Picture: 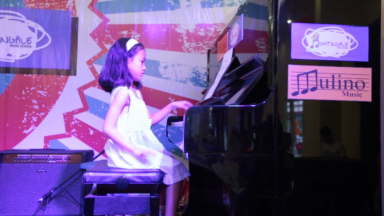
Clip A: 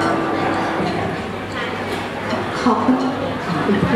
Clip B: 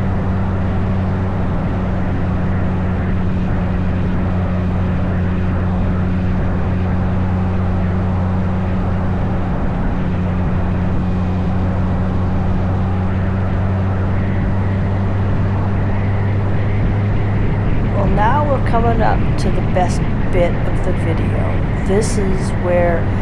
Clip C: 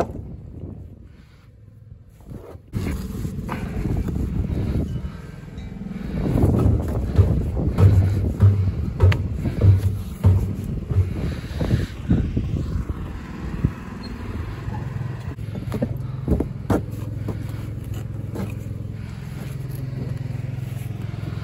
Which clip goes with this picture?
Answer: A